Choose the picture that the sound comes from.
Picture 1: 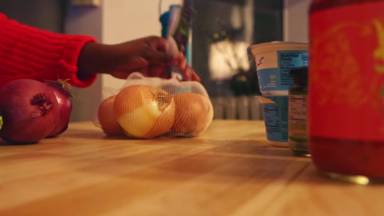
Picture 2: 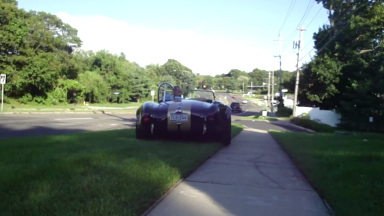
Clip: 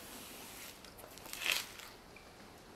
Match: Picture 1